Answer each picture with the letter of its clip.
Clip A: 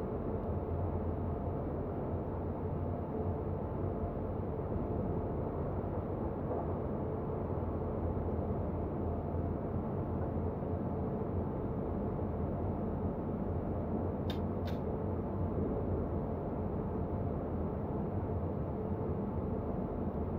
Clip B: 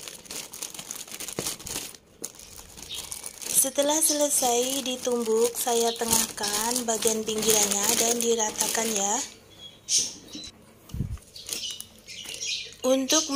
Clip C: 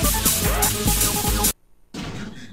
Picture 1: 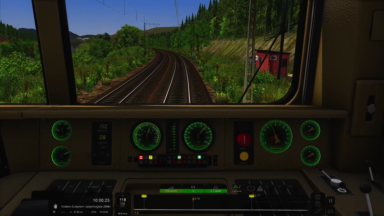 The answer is A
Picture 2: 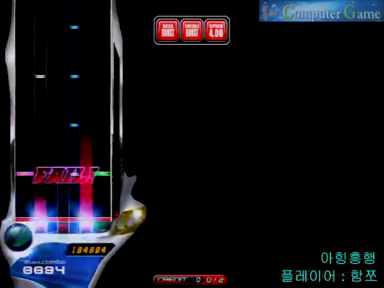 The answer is C